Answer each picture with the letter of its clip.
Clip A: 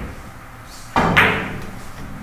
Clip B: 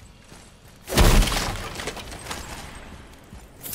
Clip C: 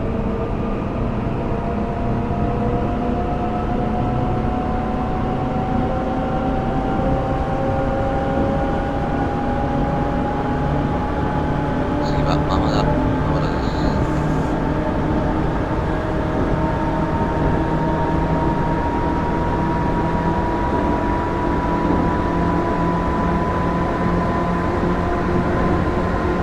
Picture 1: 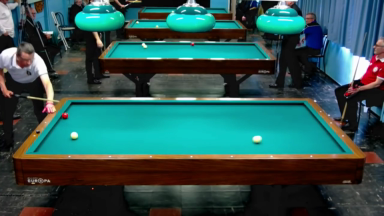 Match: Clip A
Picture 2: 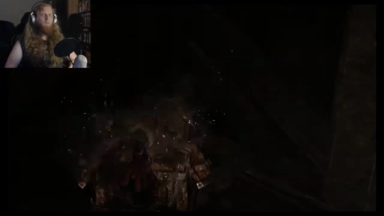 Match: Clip B